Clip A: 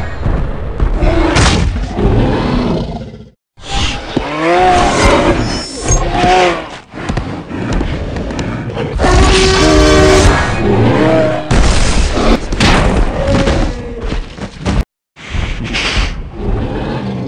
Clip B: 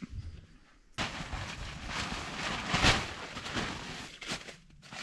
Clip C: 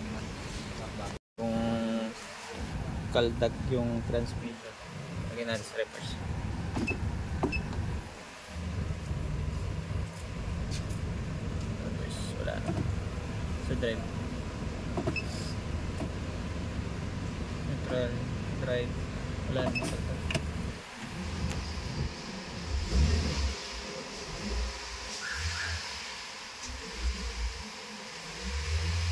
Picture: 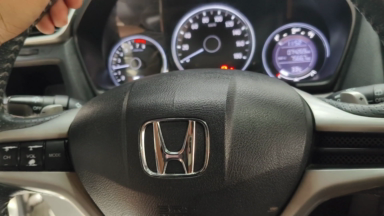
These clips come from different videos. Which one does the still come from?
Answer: C